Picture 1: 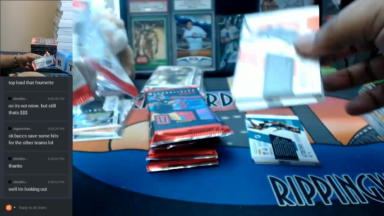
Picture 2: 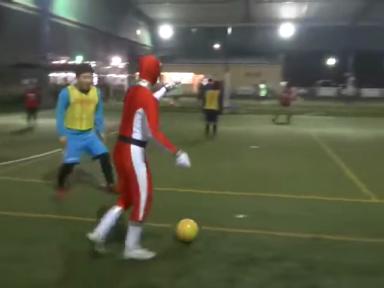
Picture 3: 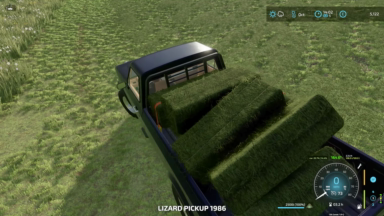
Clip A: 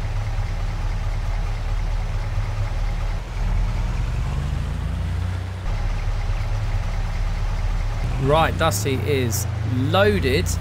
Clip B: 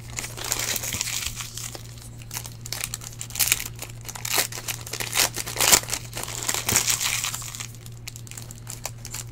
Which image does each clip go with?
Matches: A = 3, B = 1